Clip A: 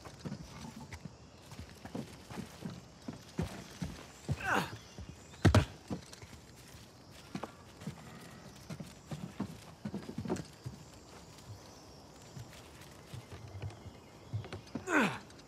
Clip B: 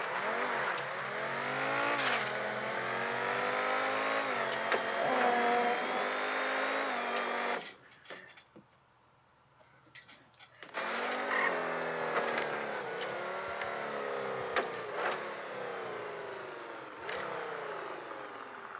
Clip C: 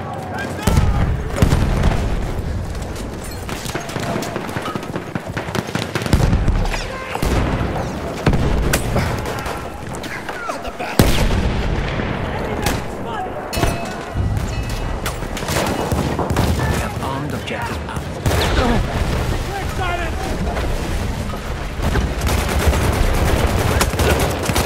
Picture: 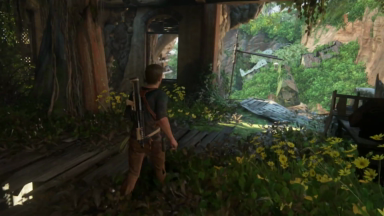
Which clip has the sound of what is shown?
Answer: A